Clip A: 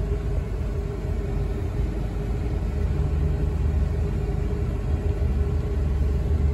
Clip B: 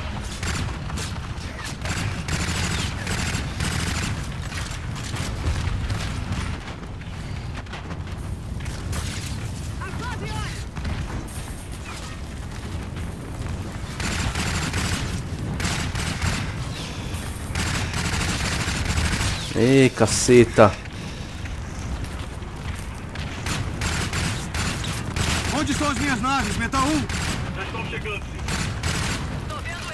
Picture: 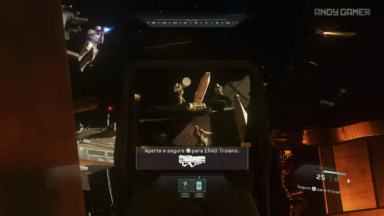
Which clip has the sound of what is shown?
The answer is B